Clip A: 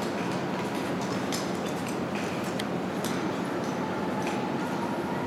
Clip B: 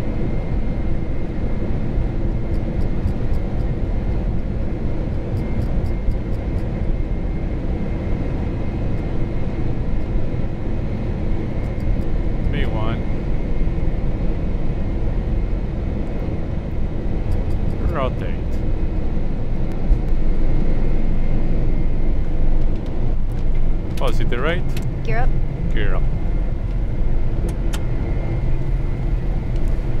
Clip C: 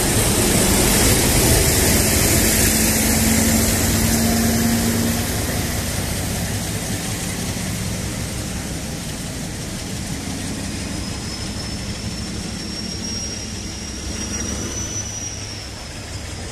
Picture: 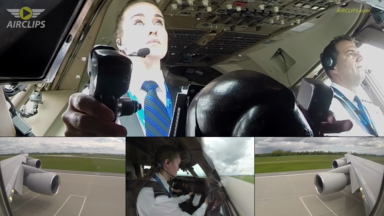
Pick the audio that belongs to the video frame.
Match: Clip B